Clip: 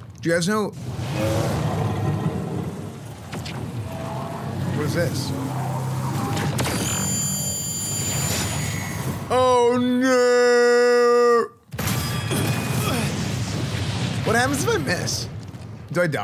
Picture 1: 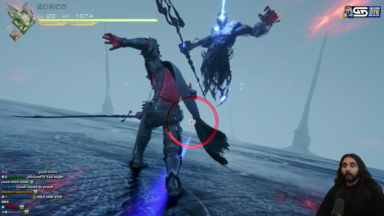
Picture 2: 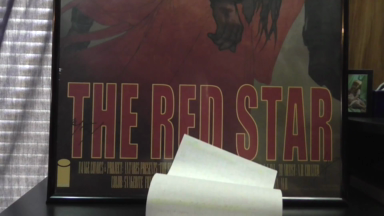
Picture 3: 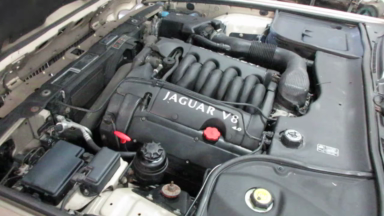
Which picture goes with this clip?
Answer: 1